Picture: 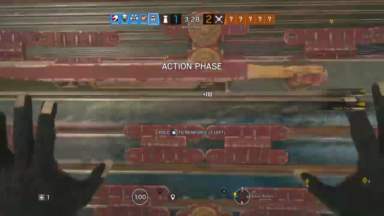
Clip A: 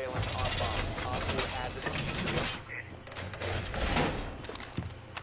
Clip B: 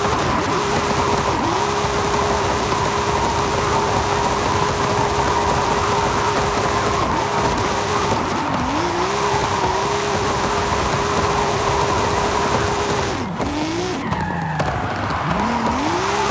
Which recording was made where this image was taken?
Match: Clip A